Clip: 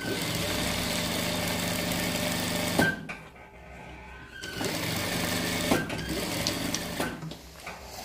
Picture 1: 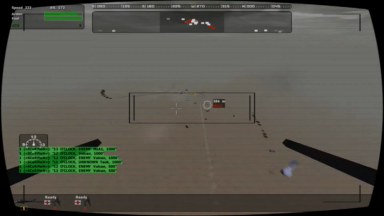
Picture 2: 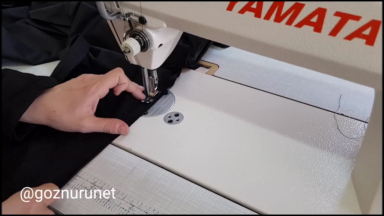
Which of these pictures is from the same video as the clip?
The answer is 2